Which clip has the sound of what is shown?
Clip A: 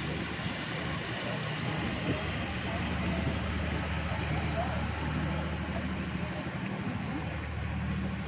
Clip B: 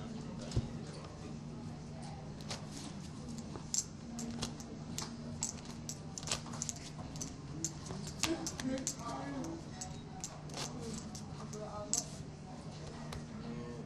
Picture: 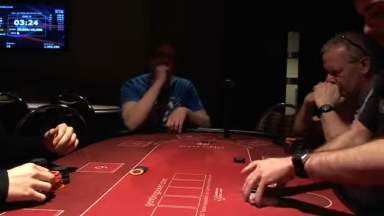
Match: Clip B